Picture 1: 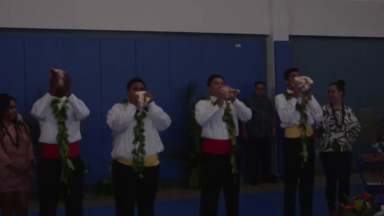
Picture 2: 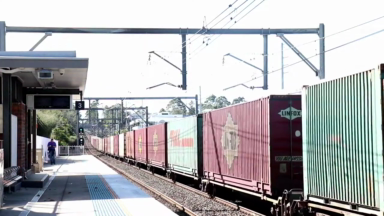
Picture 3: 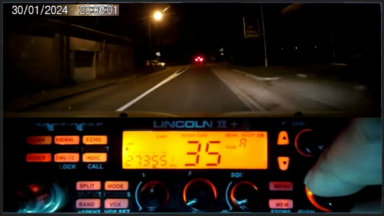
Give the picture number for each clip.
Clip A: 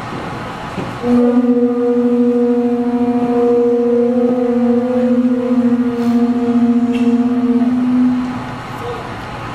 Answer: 1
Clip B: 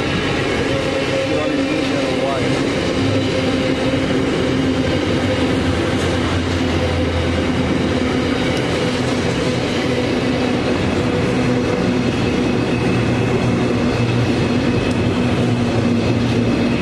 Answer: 2